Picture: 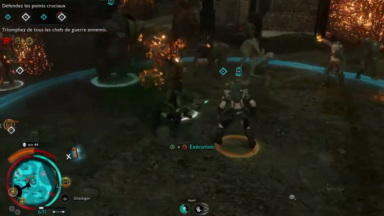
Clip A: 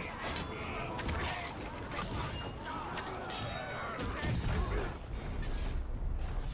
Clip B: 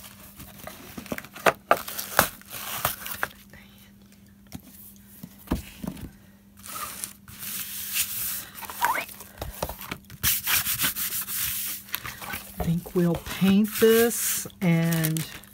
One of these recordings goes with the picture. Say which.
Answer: A